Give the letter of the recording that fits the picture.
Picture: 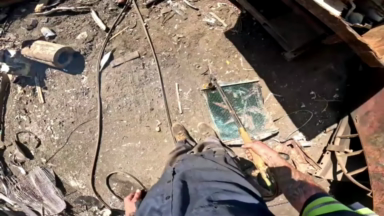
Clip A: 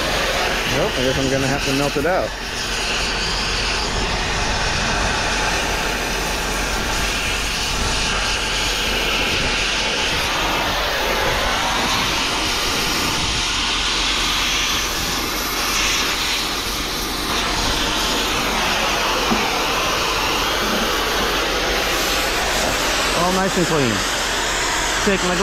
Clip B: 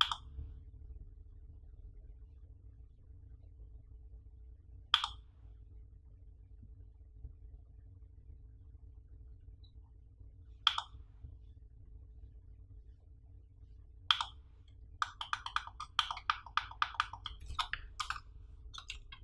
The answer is A